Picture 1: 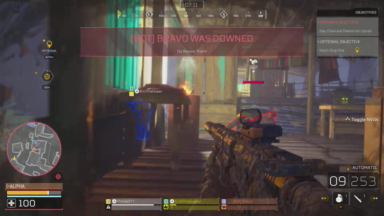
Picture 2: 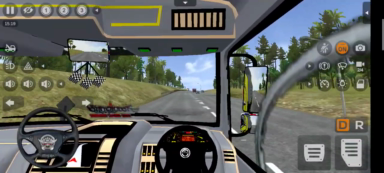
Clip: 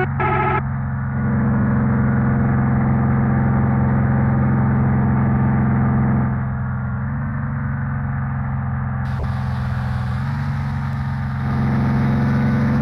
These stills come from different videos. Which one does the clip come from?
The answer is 2